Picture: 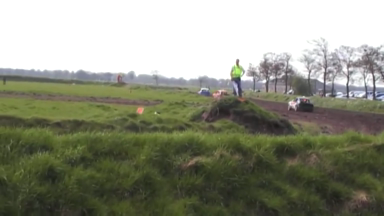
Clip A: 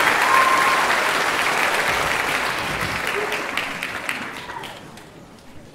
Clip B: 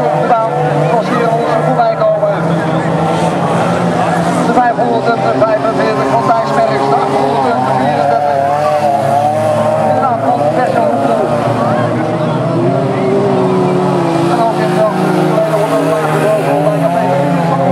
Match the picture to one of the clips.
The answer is B